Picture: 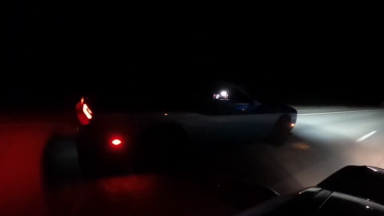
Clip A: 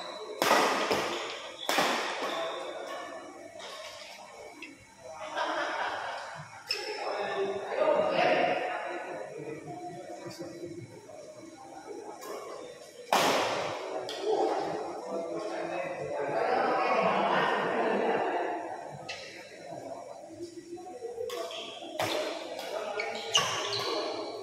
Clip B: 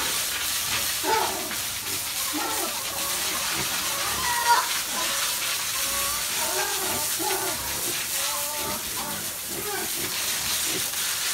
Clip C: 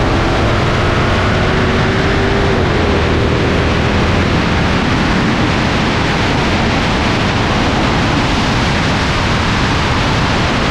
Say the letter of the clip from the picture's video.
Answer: C